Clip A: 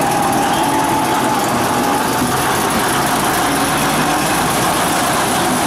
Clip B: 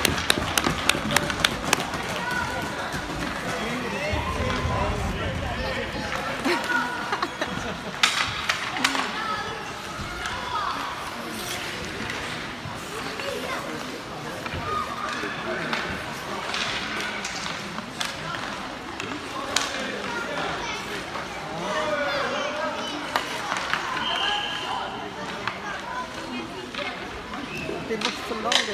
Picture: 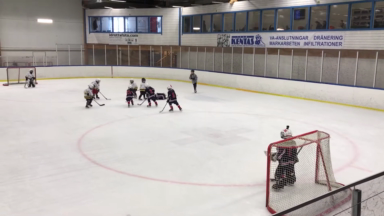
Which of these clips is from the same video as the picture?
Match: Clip B